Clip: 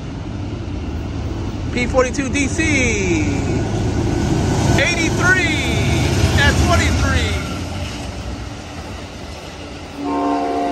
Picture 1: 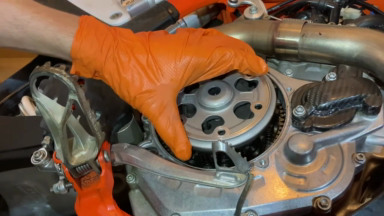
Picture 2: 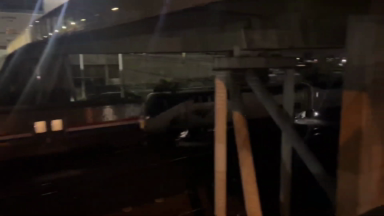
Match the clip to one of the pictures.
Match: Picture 2